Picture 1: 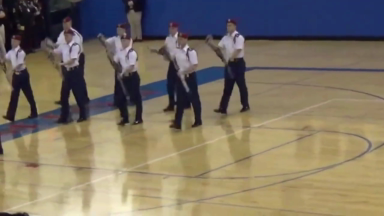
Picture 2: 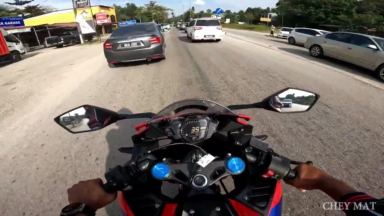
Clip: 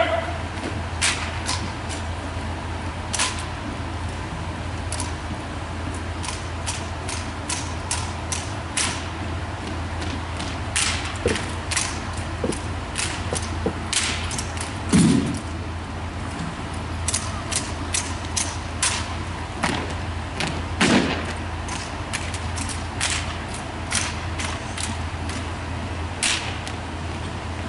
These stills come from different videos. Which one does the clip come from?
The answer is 1